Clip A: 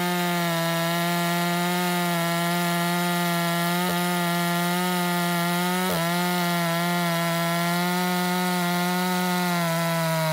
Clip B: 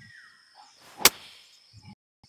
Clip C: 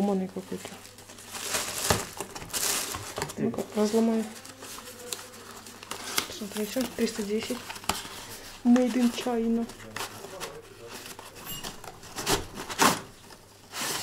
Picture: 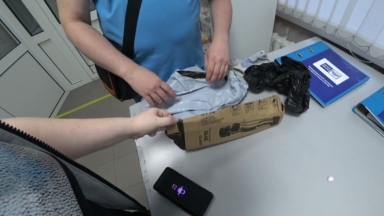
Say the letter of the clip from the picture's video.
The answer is C